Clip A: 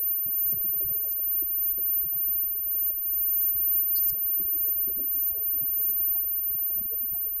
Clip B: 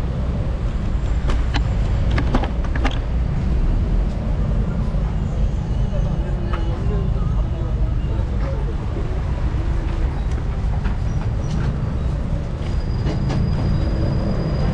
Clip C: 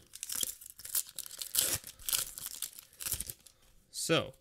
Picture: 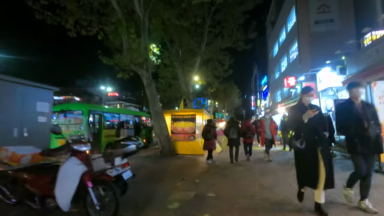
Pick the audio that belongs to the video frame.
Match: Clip B